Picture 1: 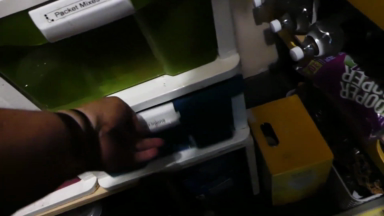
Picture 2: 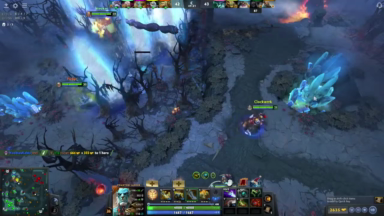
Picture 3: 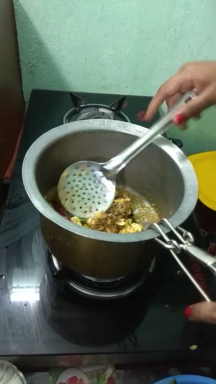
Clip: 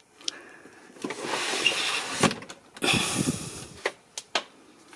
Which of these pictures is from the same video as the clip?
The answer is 1